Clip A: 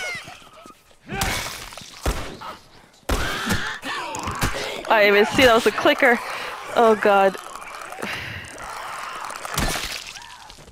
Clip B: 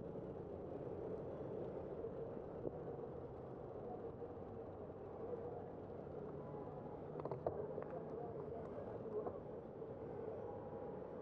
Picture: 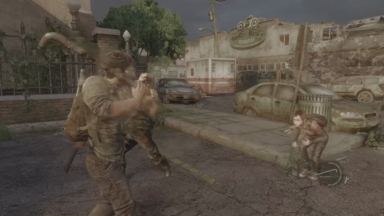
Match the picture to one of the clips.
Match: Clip A